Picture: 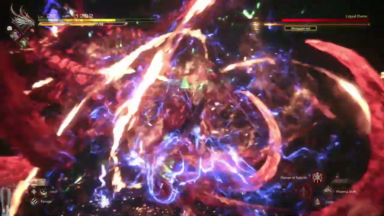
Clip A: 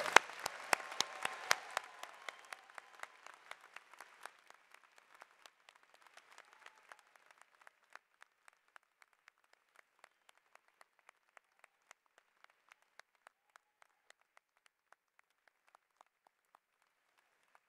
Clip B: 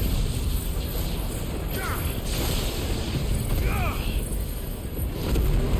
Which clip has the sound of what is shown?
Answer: B